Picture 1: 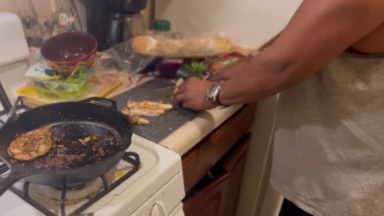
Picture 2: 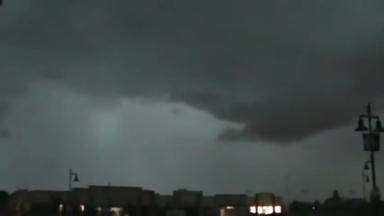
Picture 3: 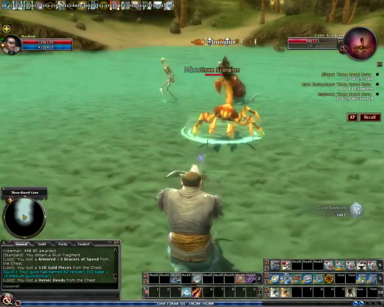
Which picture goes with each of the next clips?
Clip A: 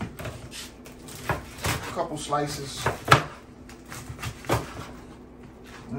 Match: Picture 1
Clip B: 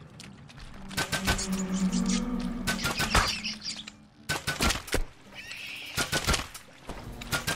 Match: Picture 3